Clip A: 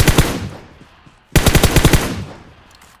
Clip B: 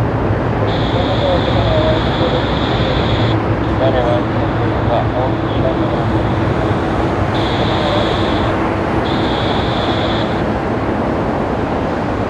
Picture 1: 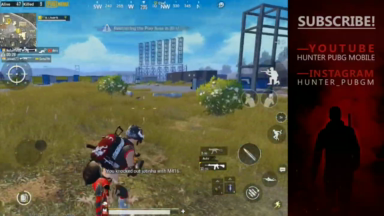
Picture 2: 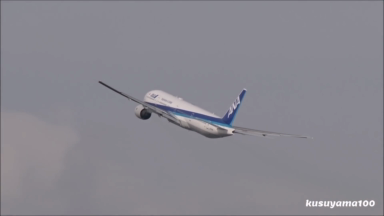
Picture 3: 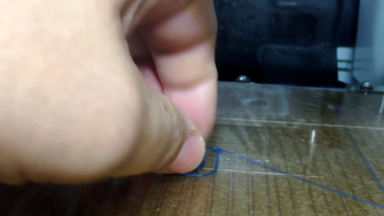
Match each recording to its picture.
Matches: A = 1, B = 2